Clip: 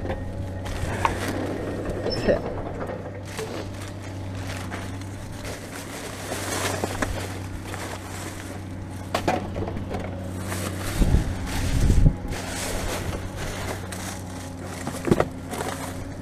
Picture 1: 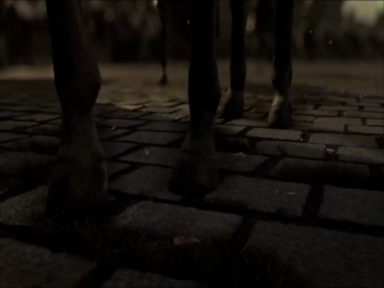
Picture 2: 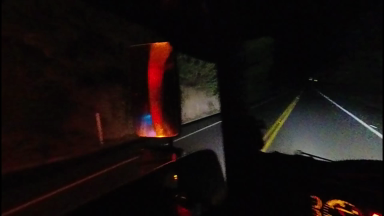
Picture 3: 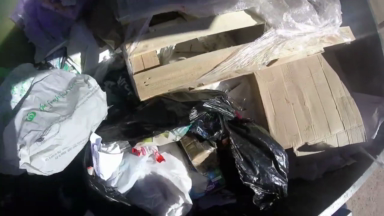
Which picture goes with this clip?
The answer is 3